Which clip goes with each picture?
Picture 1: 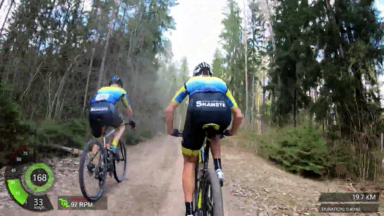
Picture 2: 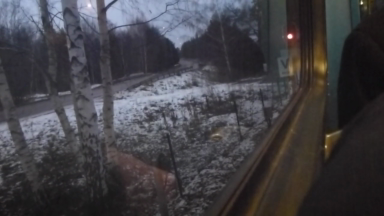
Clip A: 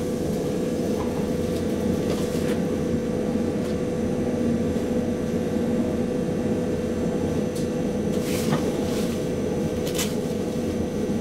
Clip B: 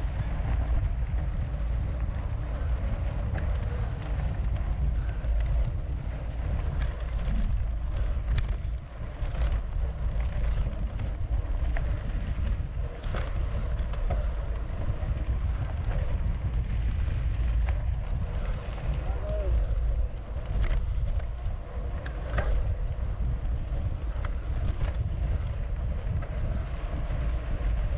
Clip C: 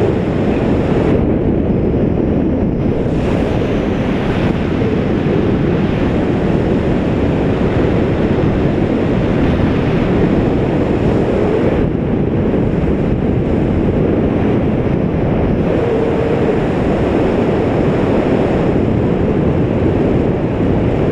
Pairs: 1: B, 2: A